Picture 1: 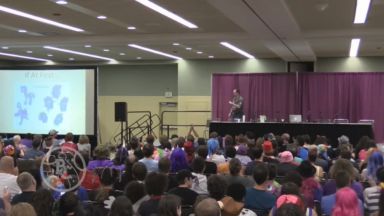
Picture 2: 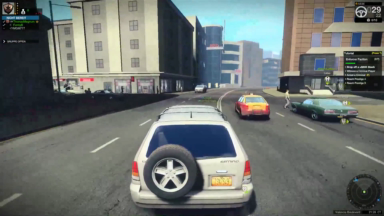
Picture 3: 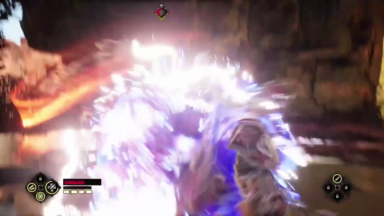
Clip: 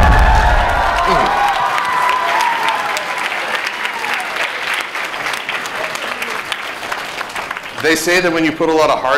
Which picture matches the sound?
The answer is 1